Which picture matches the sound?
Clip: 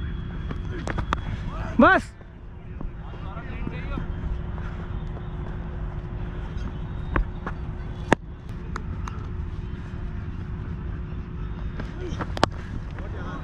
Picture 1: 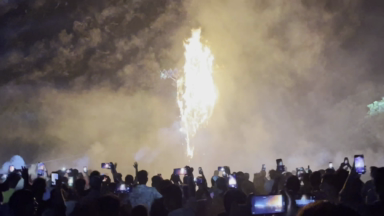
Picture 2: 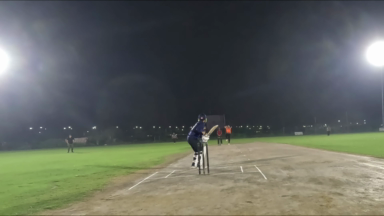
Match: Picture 2